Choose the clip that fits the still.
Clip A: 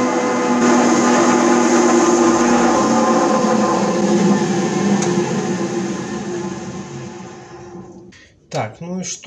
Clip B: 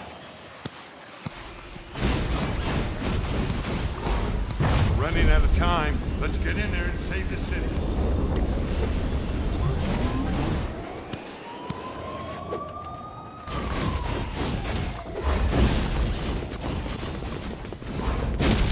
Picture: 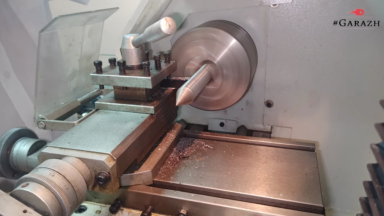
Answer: A